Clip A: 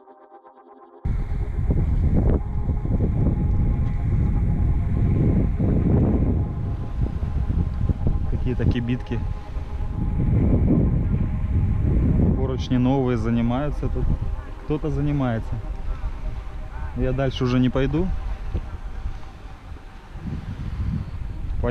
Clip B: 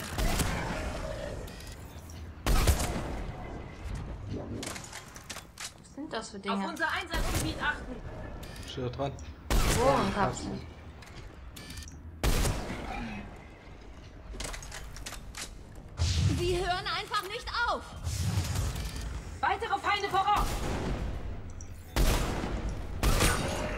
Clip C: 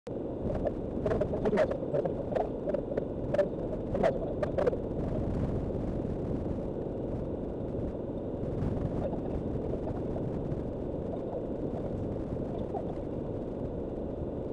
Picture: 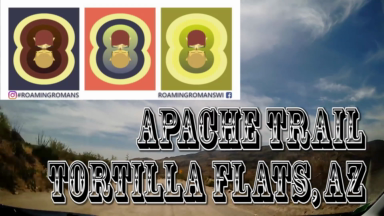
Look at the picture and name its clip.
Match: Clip C